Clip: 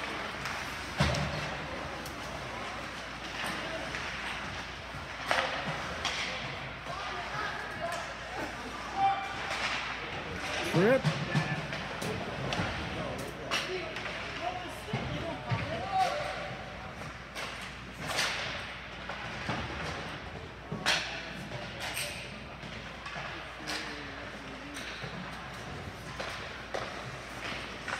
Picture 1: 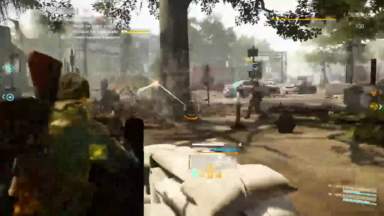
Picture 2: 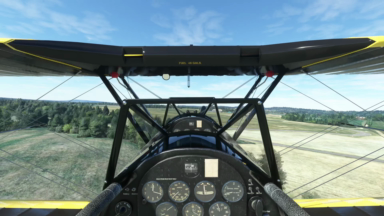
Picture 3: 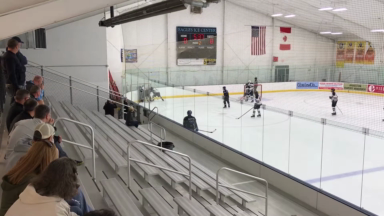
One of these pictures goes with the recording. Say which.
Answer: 3